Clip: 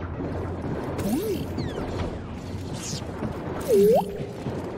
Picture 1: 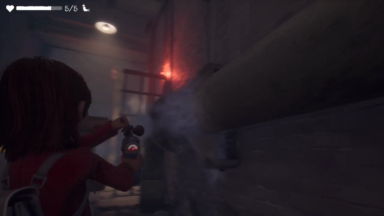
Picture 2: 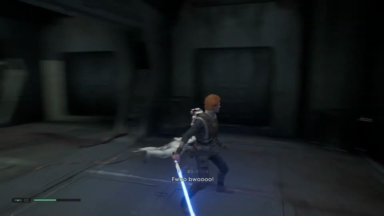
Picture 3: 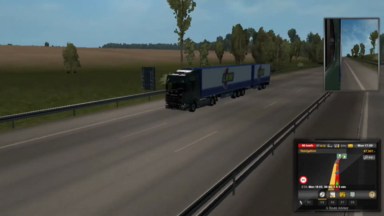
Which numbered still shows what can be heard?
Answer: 2